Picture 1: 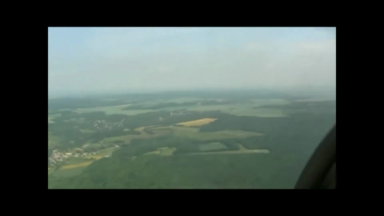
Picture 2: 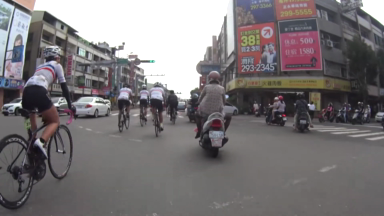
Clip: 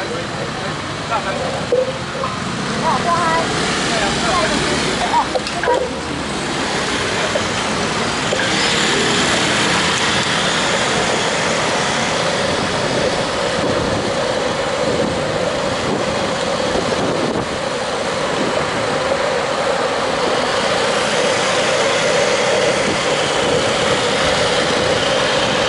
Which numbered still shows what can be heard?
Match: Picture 2